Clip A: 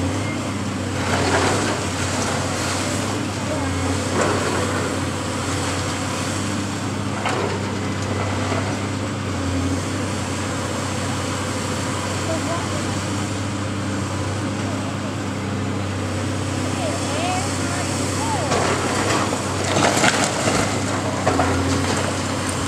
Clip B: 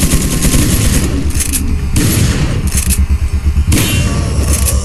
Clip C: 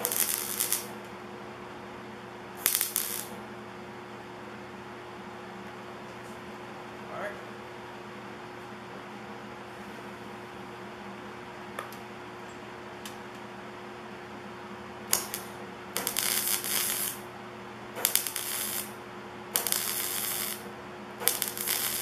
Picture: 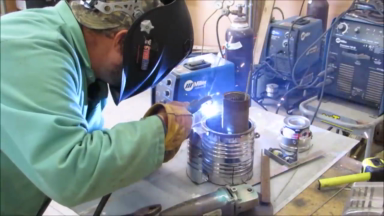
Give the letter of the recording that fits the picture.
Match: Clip C